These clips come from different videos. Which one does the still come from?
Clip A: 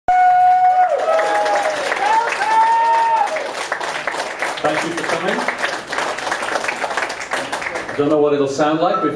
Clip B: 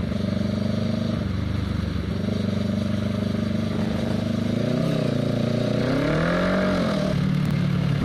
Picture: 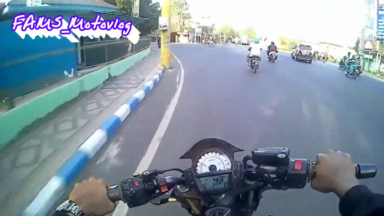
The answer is B